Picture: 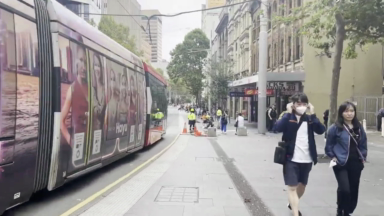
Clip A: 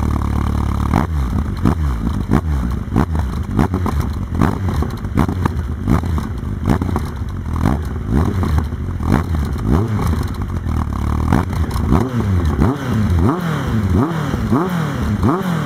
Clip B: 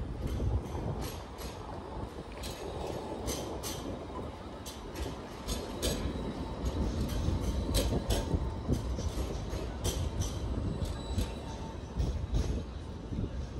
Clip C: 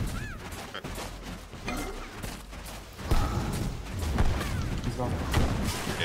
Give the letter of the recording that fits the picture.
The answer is B